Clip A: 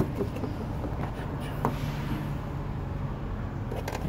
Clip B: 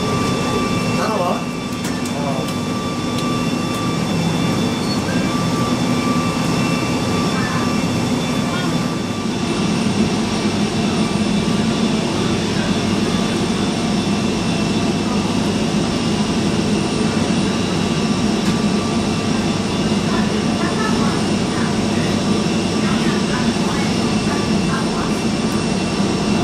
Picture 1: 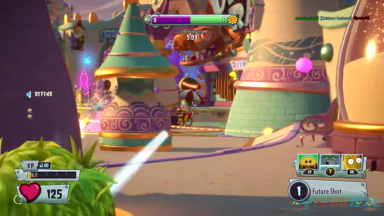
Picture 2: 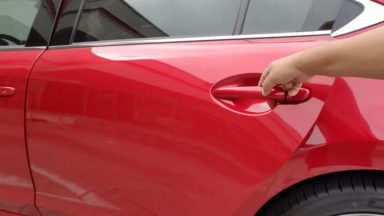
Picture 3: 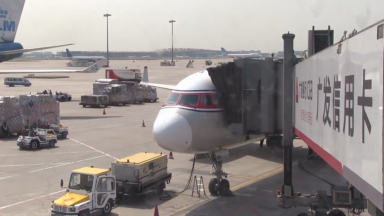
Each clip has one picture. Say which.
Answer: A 2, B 3